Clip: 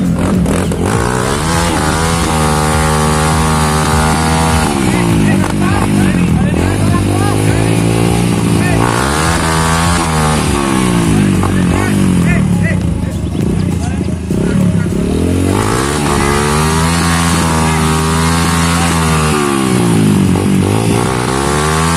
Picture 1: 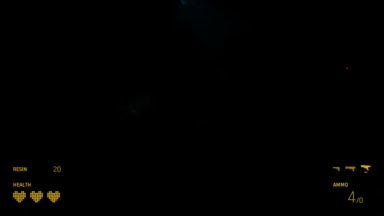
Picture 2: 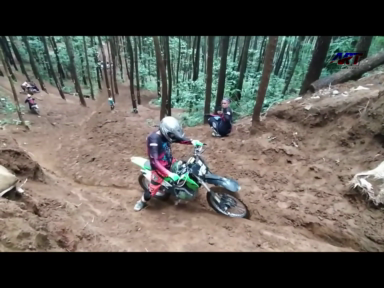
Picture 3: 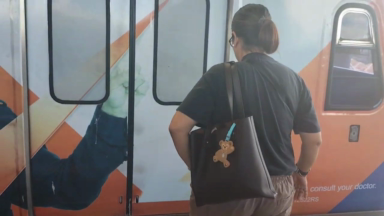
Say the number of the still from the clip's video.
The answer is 2